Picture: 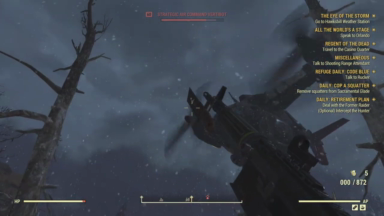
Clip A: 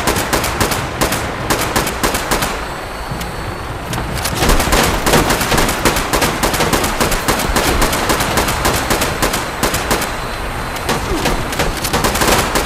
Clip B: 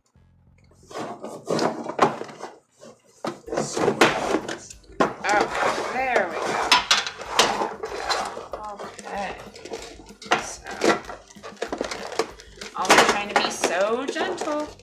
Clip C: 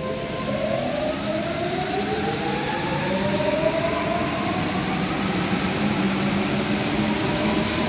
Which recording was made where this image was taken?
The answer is A